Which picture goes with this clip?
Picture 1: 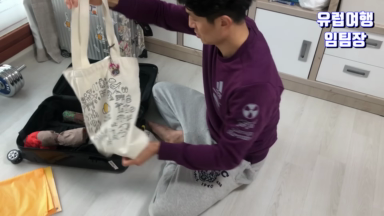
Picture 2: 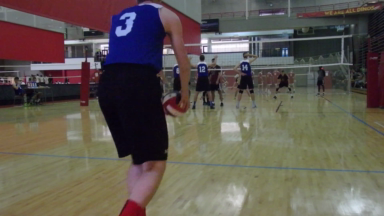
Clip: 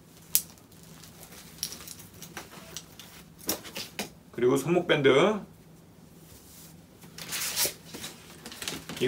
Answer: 1